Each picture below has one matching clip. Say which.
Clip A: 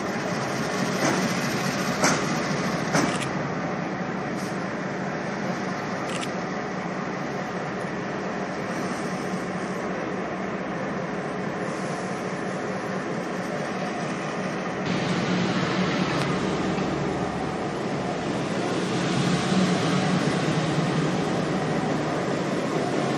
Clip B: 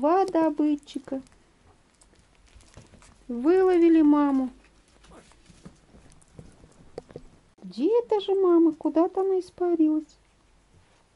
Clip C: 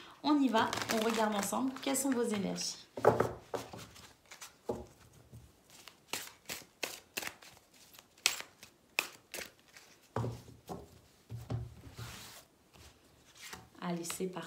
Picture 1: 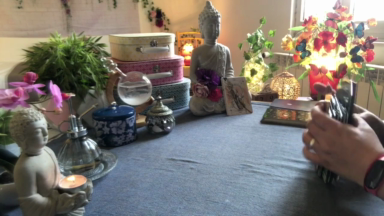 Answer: C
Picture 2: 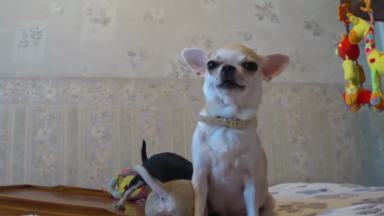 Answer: B